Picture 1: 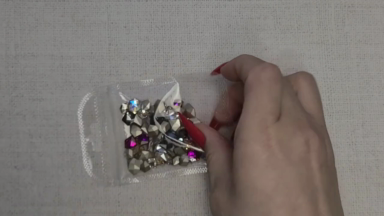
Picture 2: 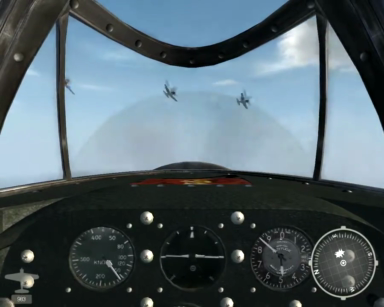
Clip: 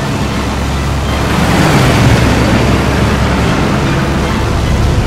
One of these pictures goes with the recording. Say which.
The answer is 2